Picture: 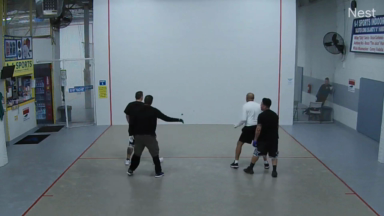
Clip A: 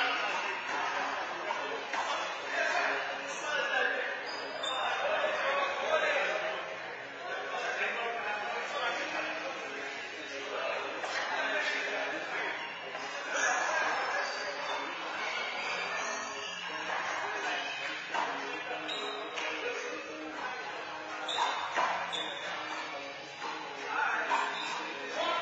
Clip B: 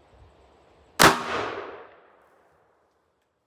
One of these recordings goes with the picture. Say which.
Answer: A